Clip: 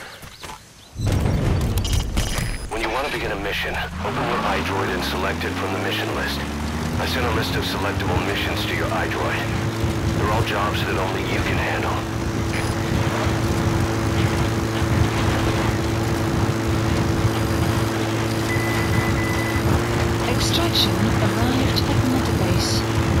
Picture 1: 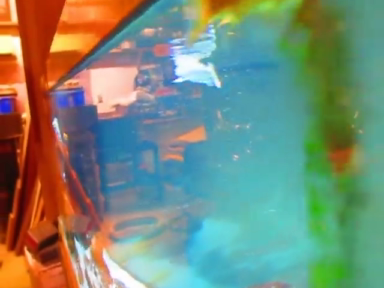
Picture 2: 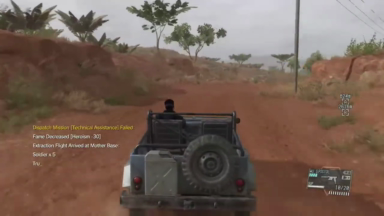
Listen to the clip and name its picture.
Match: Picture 2